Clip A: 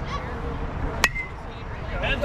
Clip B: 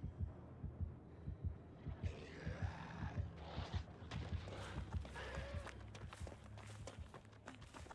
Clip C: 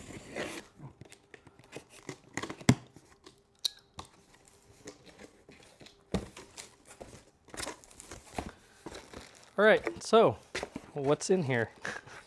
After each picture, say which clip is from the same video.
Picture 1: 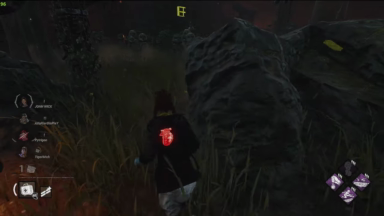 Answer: B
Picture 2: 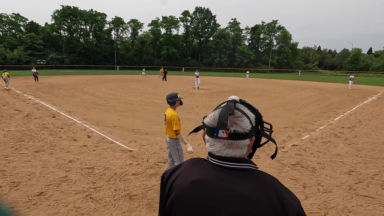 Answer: A